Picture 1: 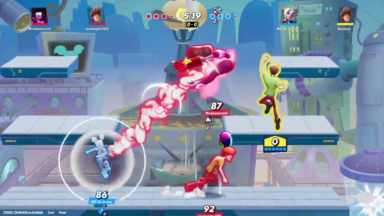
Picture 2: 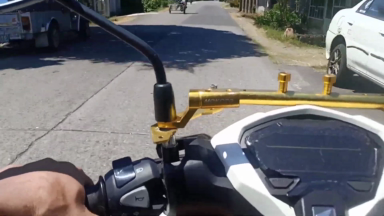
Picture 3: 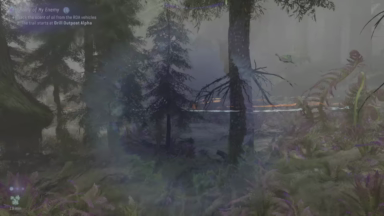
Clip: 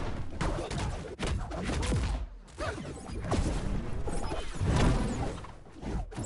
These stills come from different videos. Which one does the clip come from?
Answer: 1